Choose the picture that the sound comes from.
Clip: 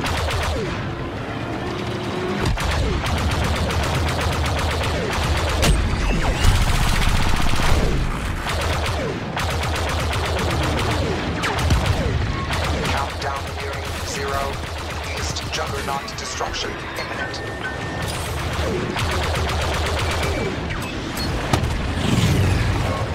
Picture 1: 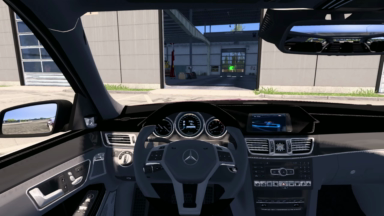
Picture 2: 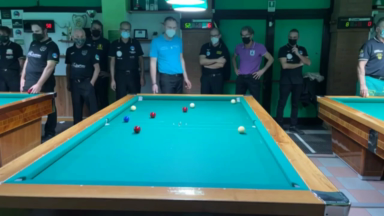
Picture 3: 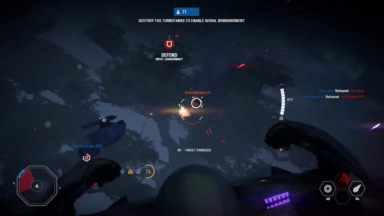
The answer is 3